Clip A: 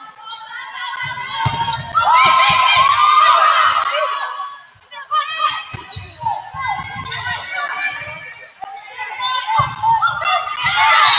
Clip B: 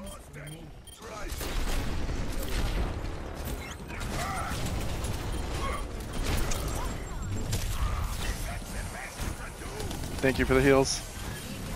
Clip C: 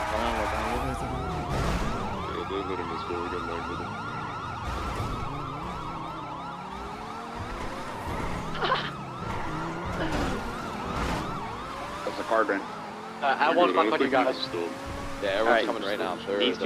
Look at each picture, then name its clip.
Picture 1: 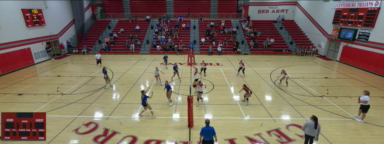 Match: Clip A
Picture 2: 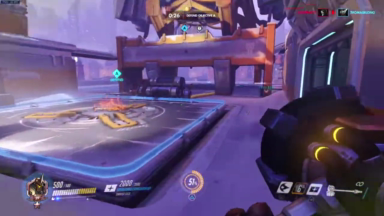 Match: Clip B